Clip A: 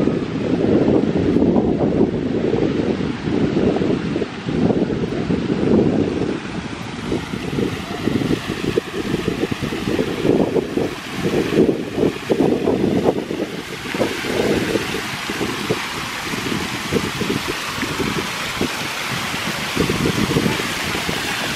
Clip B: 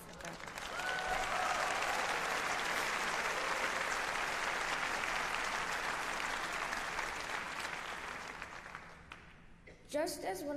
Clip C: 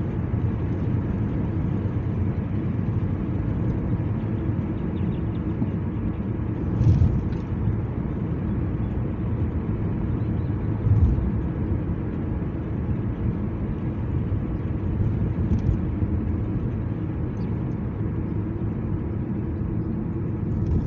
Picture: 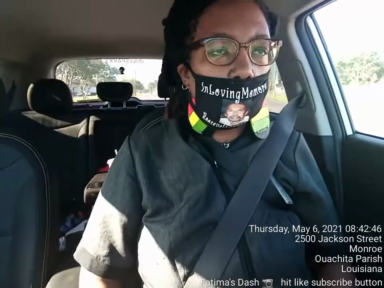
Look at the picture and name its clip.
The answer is C